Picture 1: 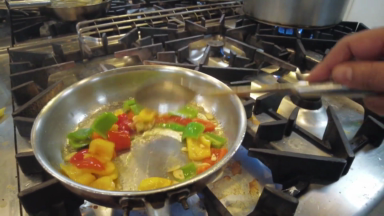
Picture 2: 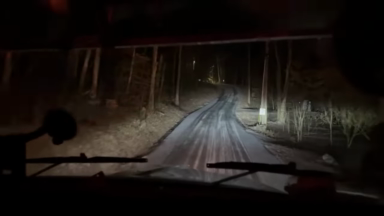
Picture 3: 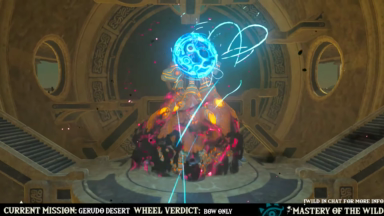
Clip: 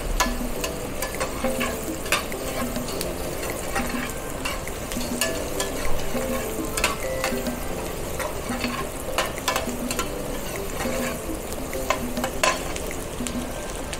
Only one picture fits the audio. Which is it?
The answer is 1